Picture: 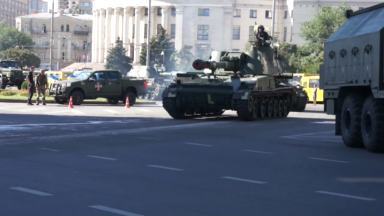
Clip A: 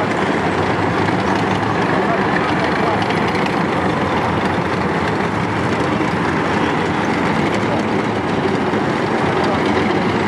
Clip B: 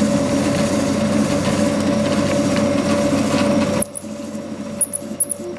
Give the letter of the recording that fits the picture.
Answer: A